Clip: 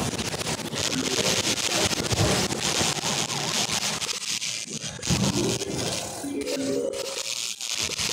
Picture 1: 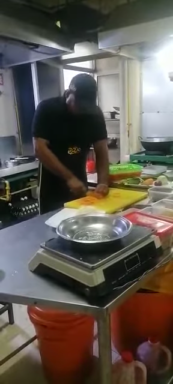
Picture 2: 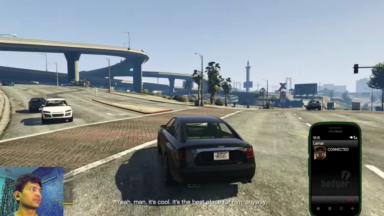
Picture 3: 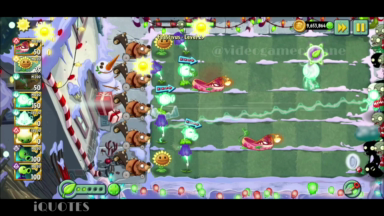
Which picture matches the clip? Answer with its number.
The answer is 3